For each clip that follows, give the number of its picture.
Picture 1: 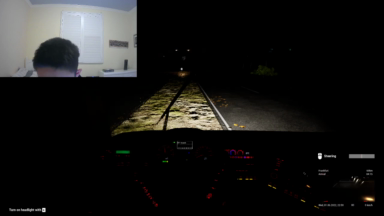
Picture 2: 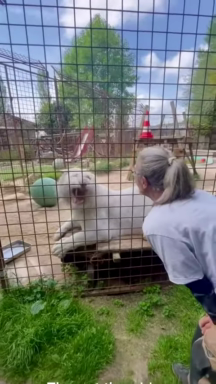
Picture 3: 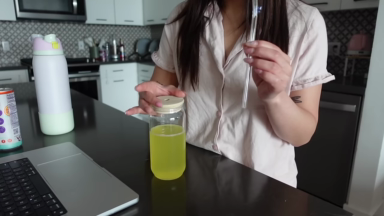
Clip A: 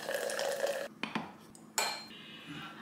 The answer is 3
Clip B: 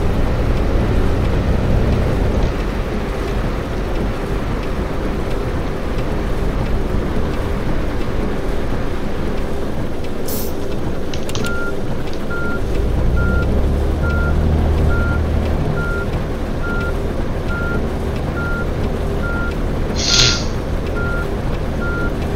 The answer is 1